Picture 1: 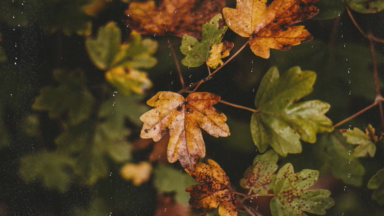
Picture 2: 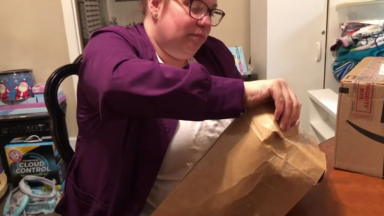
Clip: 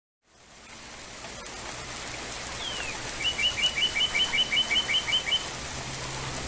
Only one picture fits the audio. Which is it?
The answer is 1